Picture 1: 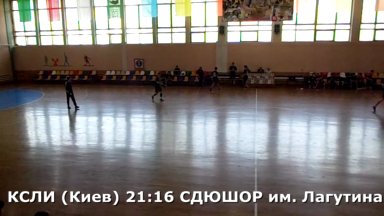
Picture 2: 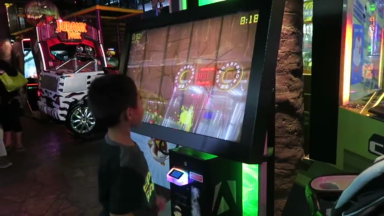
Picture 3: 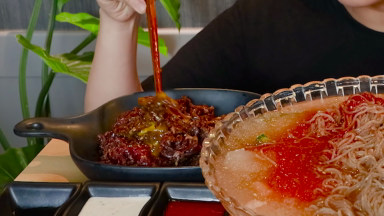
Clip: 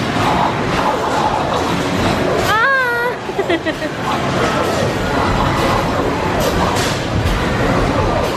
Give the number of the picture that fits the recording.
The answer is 2